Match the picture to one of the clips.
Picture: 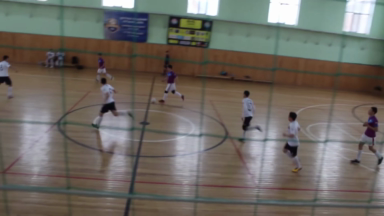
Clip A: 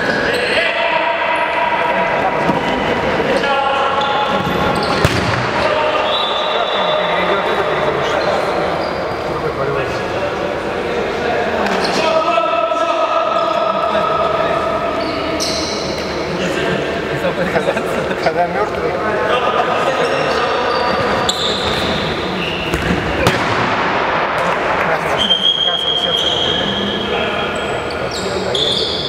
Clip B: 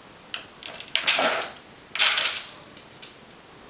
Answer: A